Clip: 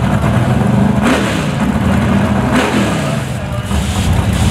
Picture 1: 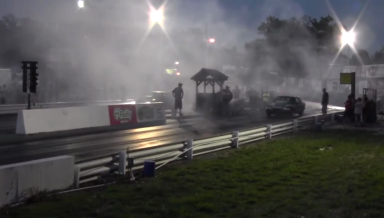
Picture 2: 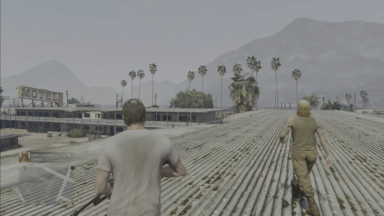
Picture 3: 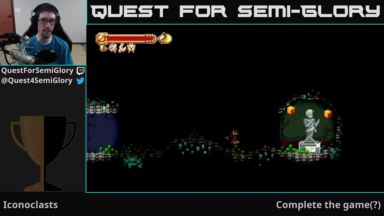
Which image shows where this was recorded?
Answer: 1